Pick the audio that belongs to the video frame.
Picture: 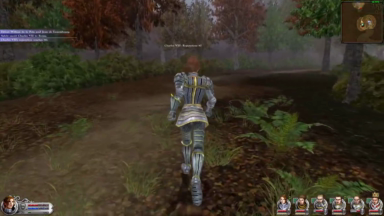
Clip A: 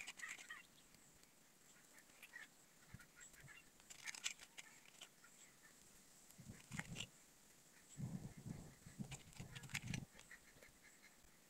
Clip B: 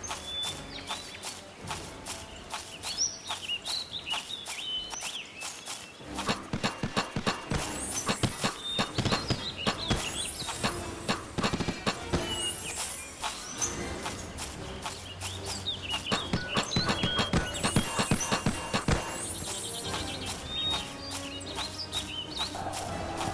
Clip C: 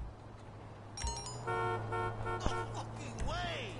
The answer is B